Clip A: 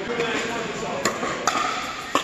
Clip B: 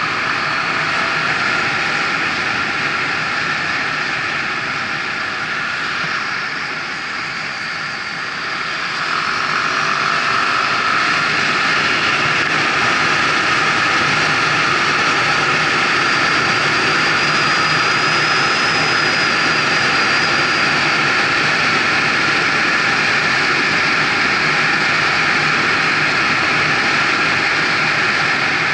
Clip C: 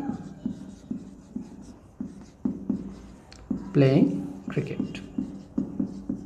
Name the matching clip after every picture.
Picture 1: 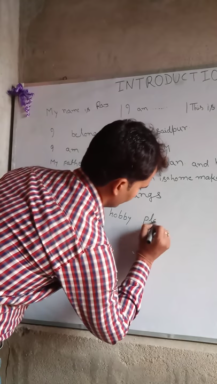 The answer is C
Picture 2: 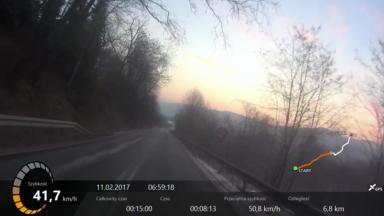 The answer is B